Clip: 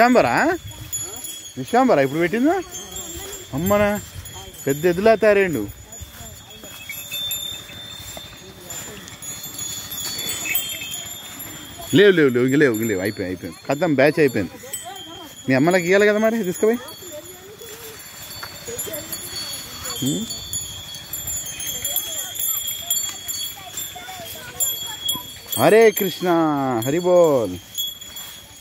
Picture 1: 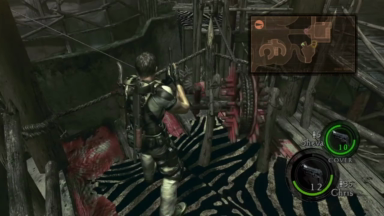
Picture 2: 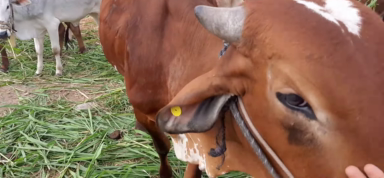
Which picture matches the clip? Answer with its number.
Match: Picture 2